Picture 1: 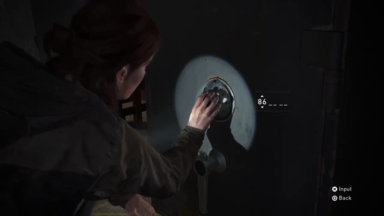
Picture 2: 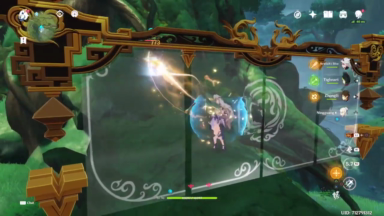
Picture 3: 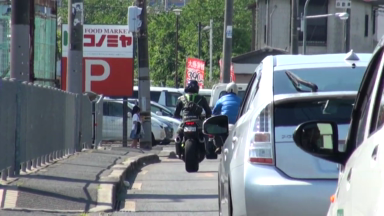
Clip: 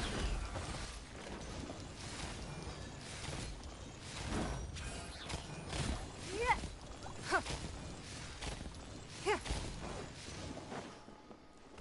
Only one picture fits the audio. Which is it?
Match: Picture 2